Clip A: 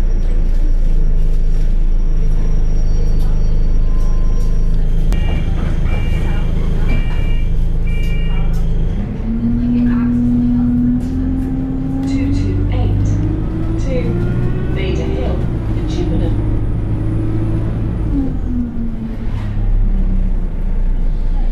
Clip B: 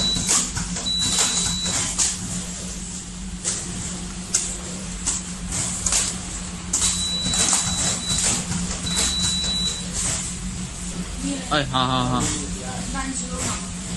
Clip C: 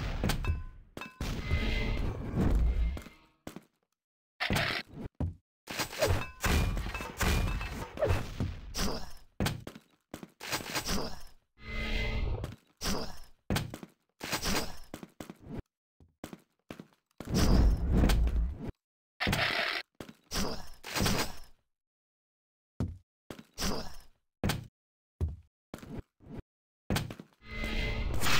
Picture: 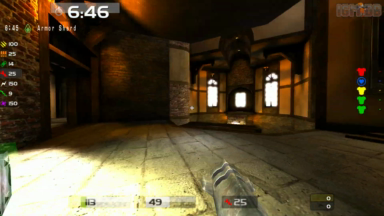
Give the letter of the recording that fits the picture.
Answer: C